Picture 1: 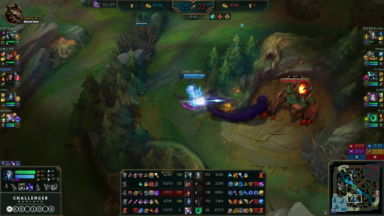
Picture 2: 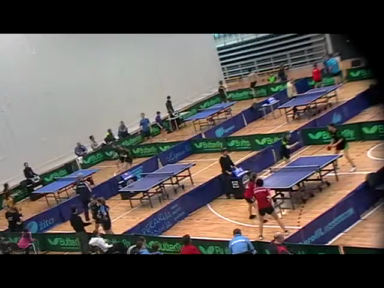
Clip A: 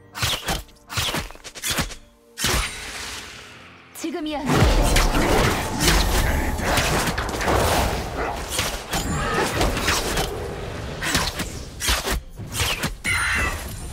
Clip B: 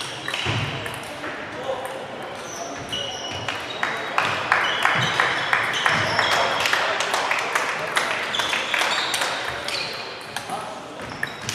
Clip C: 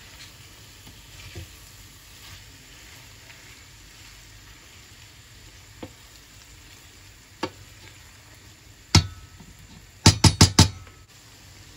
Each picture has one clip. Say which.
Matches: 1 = A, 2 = B